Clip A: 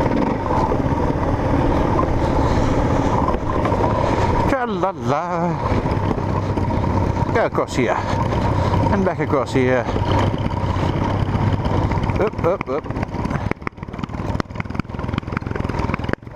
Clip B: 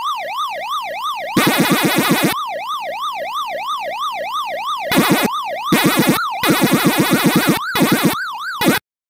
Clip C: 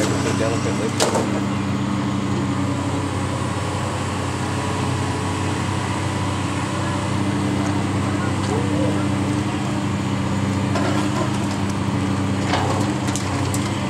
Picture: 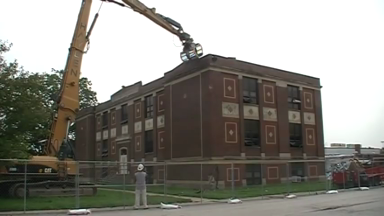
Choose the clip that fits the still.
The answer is C